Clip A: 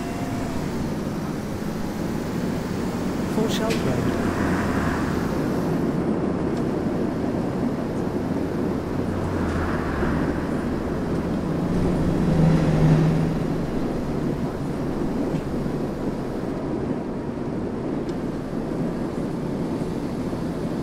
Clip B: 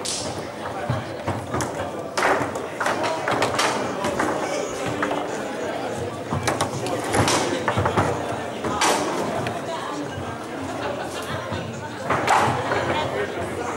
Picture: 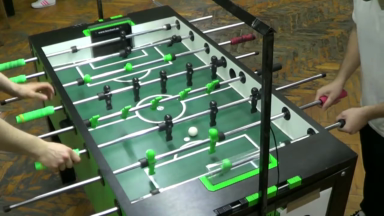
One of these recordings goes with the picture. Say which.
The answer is B